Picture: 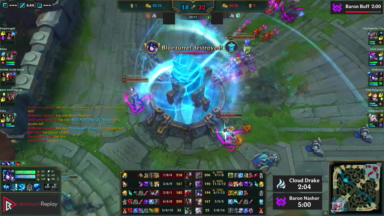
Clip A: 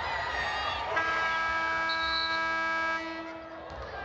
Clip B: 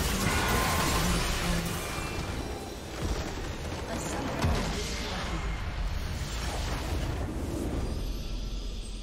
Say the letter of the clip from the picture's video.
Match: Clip B